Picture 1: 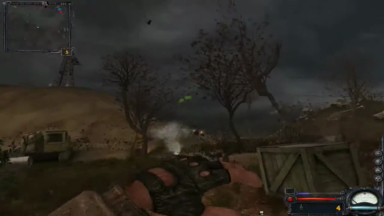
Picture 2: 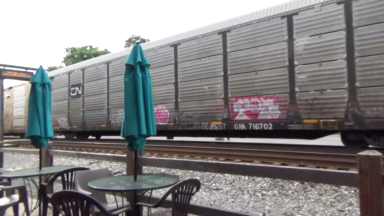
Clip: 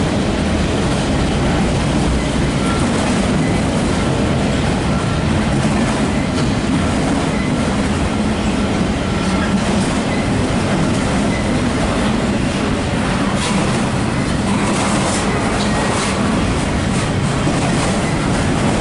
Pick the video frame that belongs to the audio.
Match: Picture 2